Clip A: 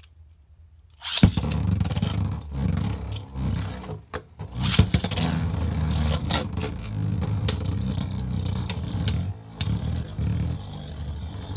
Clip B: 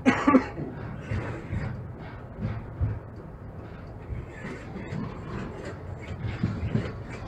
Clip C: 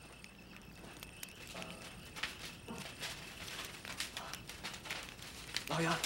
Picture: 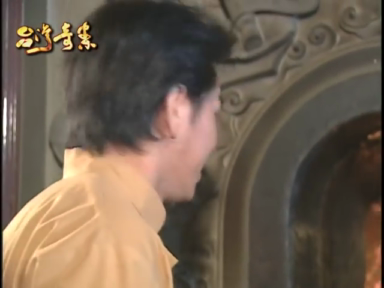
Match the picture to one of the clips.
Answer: C